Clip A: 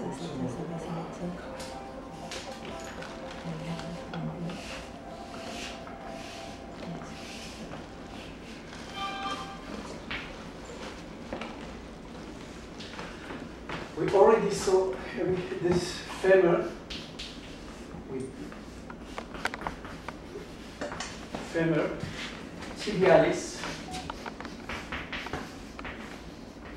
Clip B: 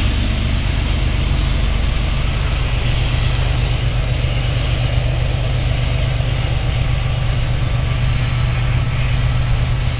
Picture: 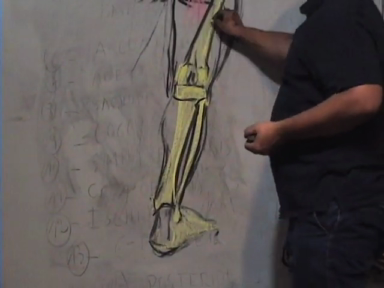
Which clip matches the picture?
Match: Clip A